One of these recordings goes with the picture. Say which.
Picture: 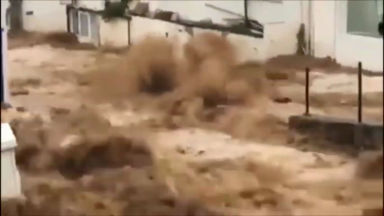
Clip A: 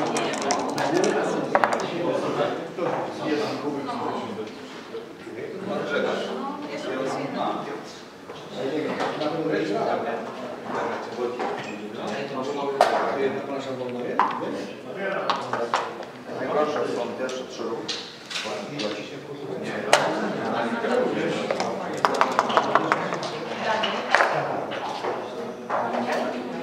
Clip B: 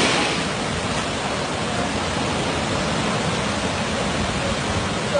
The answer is B